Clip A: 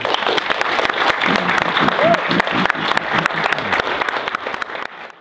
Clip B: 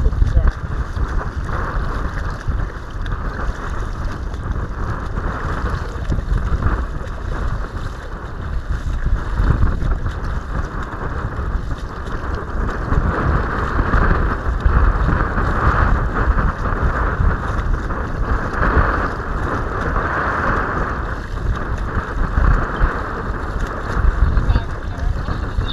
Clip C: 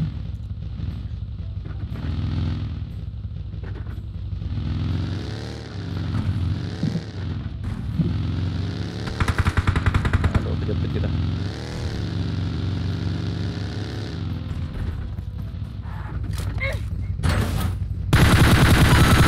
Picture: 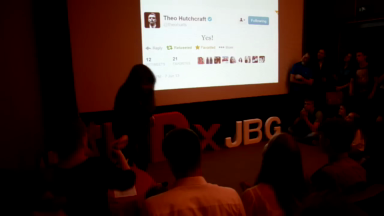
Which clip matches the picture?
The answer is A